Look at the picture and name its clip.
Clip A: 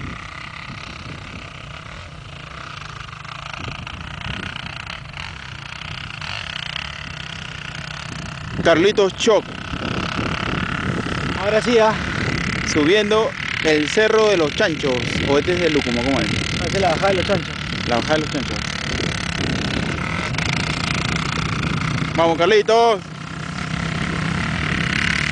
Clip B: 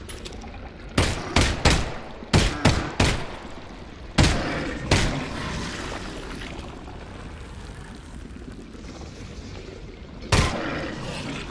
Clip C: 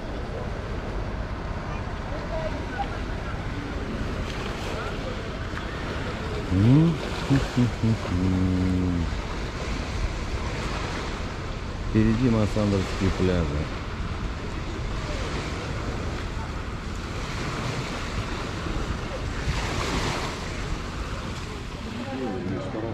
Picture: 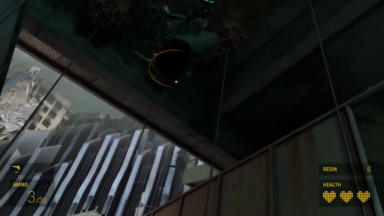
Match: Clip B